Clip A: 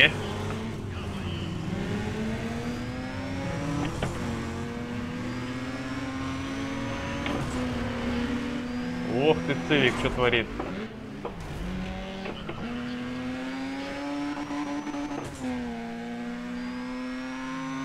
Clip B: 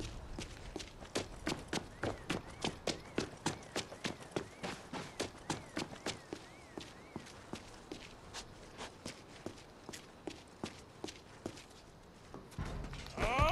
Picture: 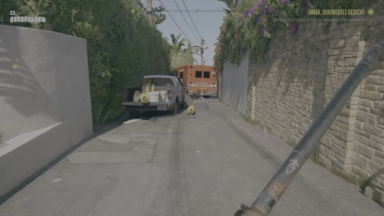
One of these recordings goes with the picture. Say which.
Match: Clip B